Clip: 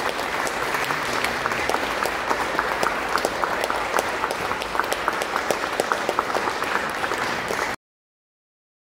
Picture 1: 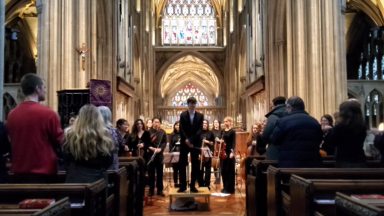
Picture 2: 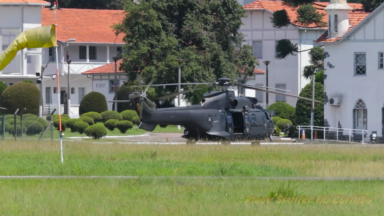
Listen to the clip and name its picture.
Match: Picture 1